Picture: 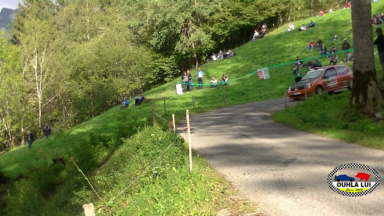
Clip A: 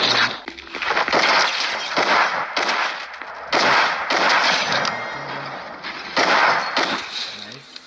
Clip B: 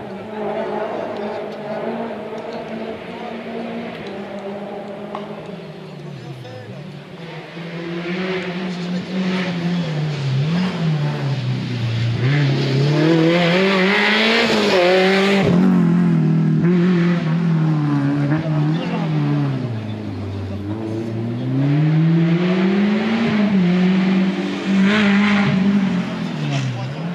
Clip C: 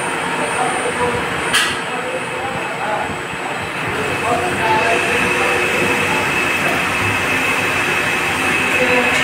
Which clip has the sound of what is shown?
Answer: B